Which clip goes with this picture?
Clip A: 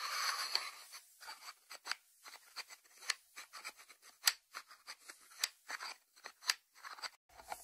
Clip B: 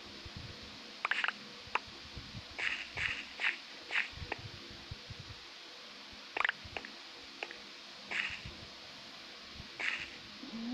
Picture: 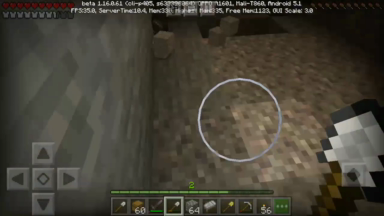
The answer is B